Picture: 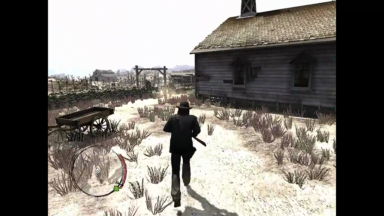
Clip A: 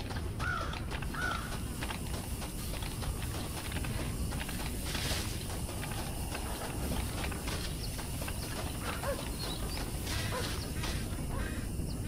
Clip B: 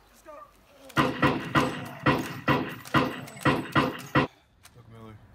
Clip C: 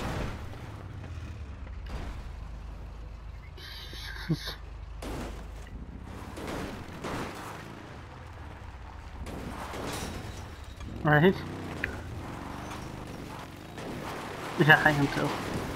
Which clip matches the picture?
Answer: A